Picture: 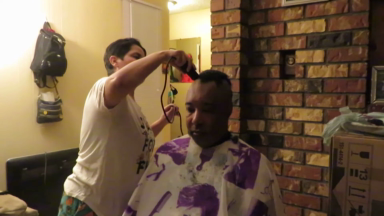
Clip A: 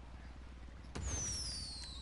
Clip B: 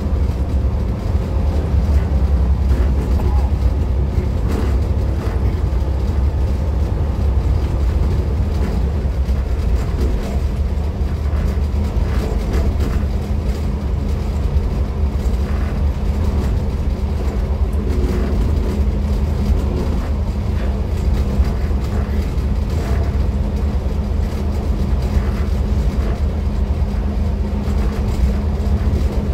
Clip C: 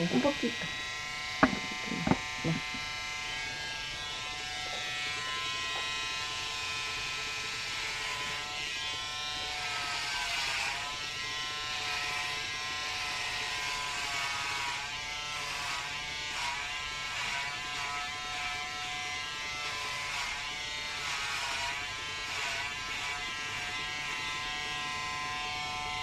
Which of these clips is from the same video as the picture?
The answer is C